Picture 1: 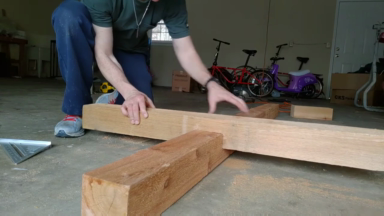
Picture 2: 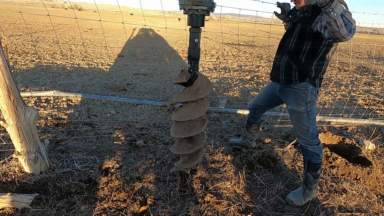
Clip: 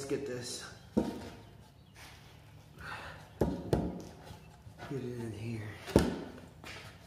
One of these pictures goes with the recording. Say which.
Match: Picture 1